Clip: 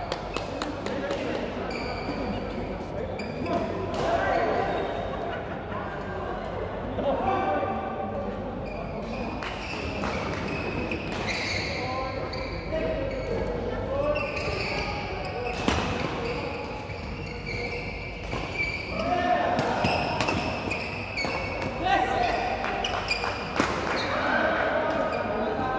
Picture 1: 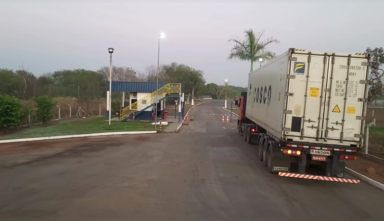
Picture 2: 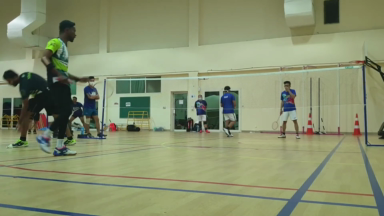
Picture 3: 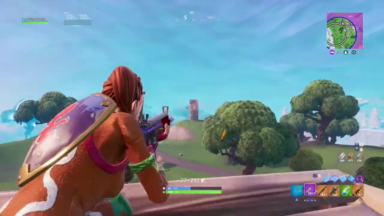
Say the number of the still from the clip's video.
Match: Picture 2